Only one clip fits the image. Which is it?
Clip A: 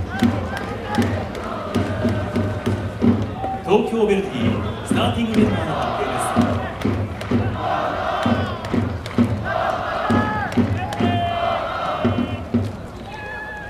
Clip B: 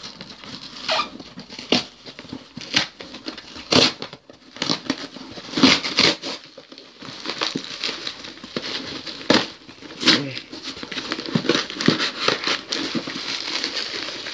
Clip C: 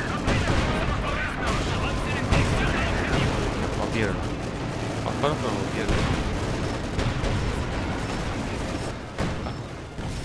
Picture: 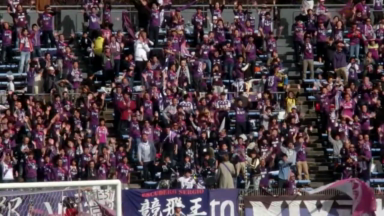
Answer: A